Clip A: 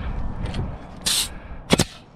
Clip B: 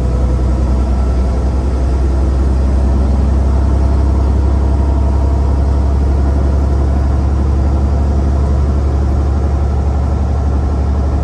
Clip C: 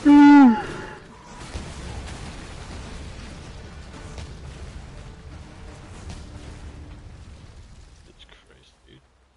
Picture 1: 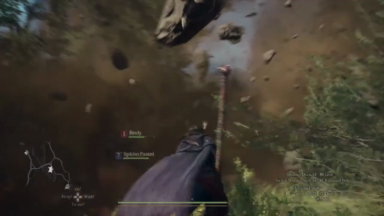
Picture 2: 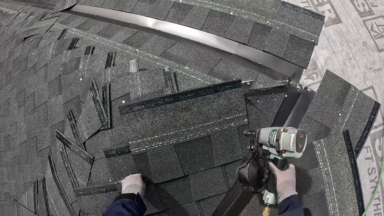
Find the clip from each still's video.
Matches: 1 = C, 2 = A